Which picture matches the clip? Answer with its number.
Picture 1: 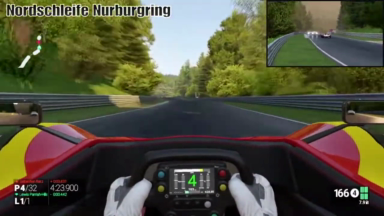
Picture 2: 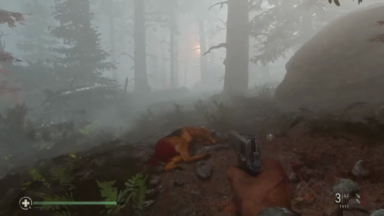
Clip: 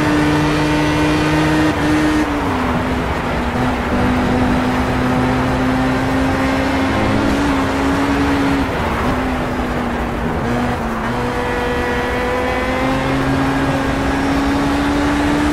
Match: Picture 1